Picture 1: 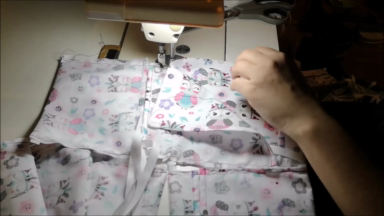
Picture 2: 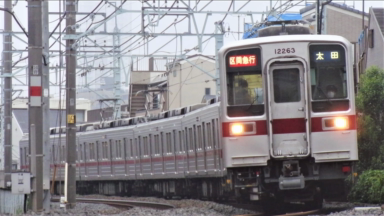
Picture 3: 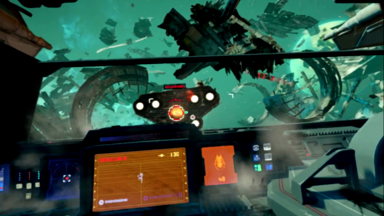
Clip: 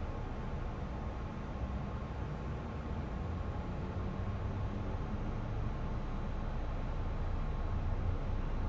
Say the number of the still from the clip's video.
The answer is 2